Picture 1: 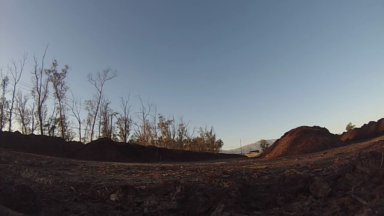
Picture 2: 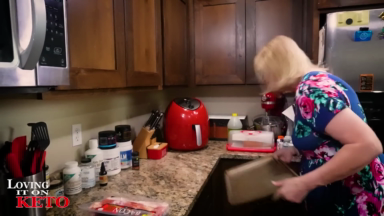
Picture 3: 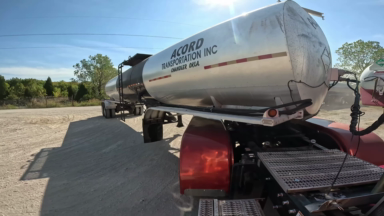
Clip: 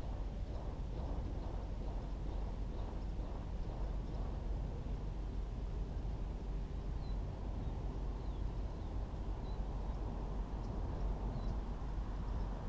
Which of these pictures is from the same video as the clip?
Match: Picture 1